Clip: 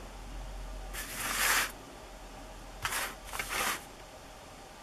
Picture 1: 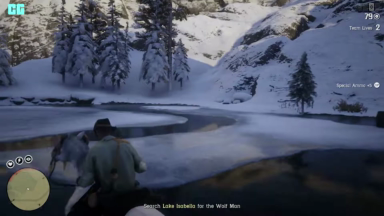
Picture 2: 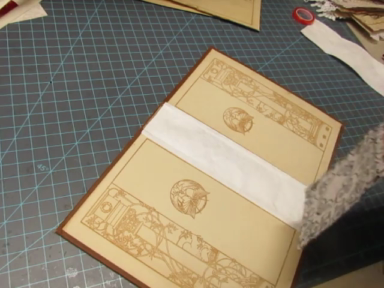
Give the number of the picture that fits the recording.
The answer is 2